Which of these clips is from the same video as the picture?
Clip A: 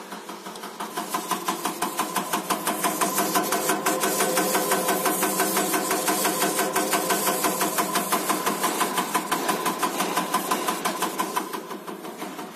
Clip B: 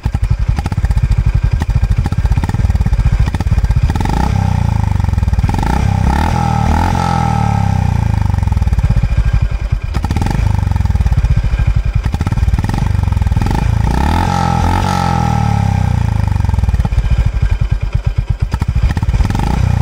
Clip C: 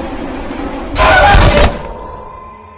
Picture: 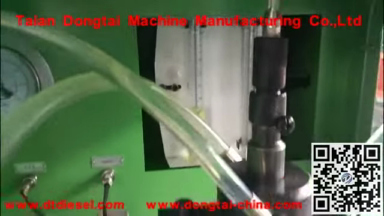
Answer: A